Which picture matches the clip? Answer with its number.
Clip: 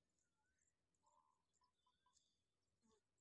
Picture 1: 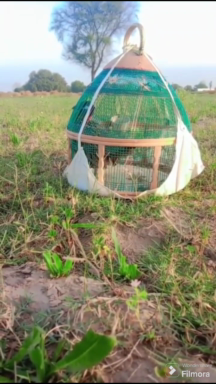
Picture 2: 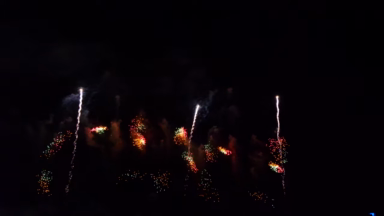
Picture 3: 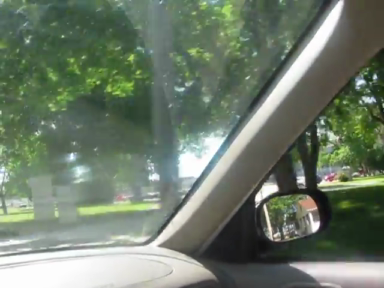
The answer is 1